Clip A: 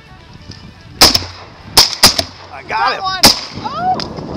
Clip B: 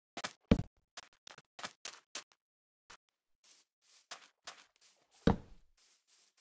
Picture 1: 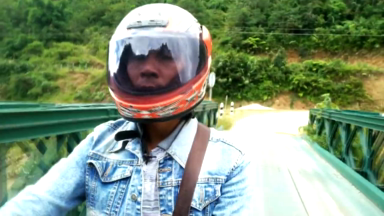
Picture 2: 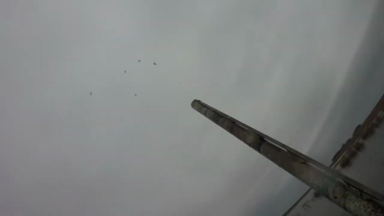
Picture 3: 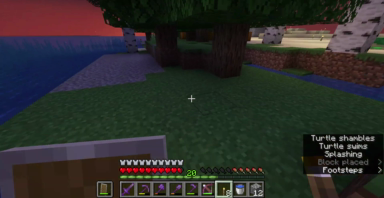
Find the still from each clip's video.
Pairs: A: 2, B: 3